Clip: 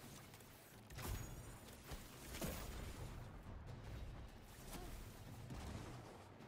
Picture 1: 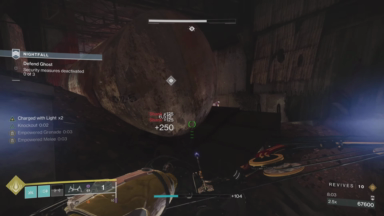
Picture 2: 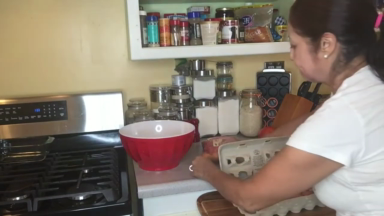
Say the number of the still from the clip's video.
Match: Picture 1